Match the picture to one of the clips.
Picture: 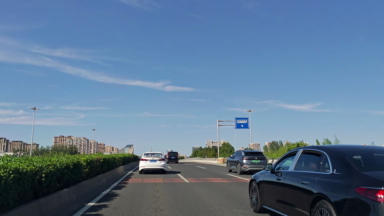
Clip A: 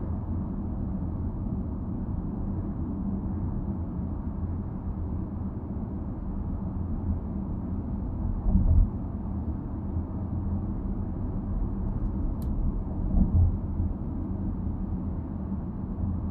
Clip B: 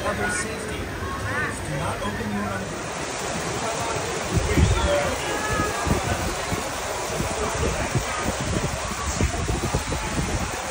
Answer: A